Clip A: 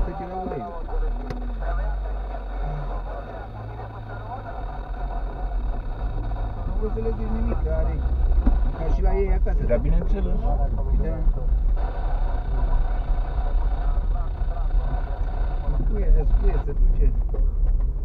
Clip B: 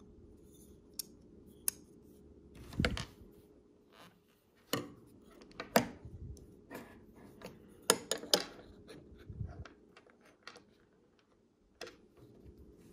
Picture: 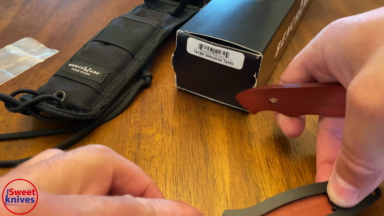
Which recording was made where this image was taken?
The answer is B